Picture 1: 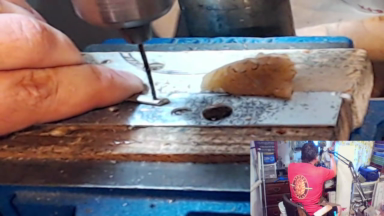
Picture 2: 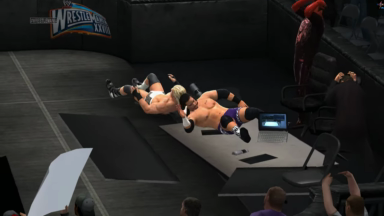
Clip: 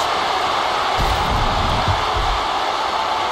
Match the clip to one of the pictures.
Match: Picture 2